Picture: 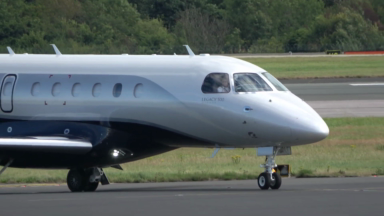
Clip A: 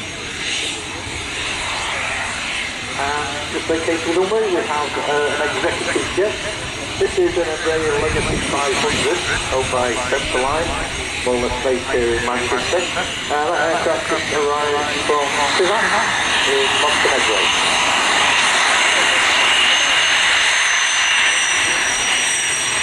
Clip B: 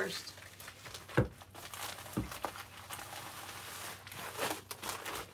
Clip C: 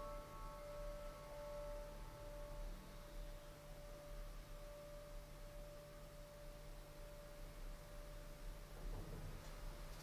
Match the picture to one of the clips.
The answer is A